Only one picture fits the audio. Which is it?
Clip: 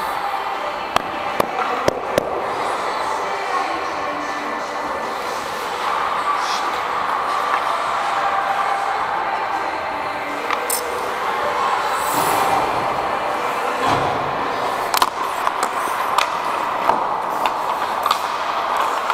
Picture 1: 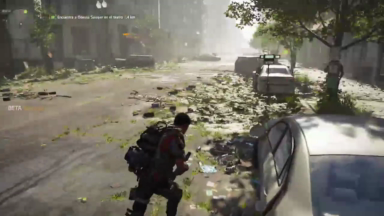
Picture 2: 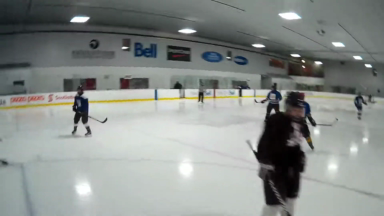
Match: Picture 2